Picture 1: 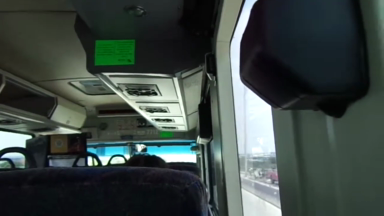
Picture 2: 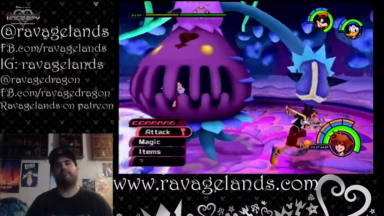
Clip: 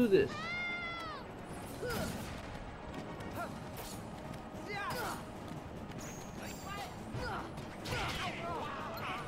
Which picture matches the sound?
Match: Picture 2